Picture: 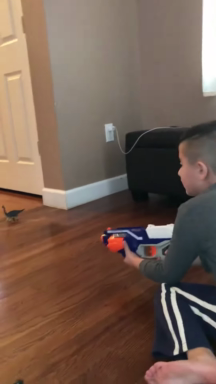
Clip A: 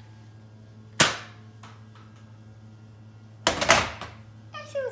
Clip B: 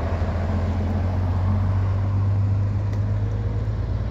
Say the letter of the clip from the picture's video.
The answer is A